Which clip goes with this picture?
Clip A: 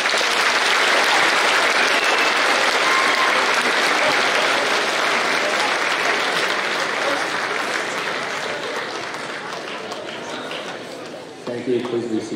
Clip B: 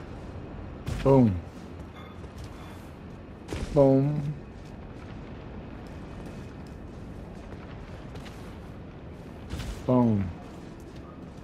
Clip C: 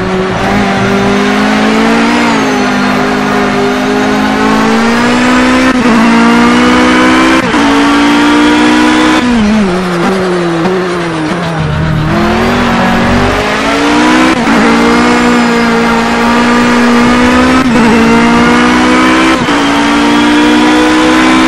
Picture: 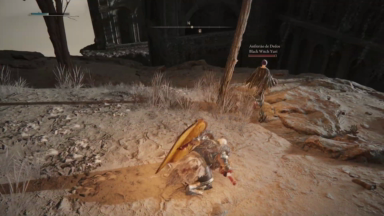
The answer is B